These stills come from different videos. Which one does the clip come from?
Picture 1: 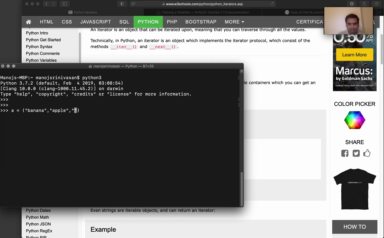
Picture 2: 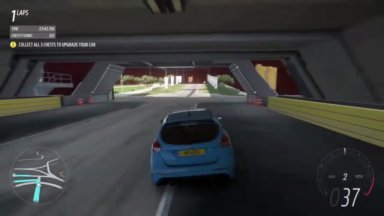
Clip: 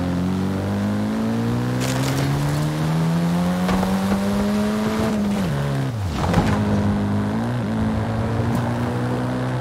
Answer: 2